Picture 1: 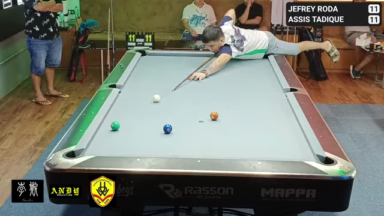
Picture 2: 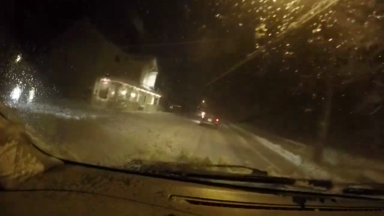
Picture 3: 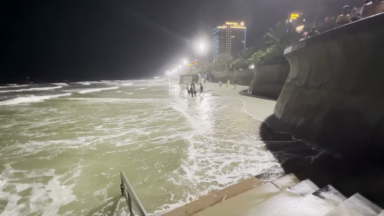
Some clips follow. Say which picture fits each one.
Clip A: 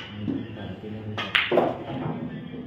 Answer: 1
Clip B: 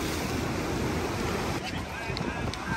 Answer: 3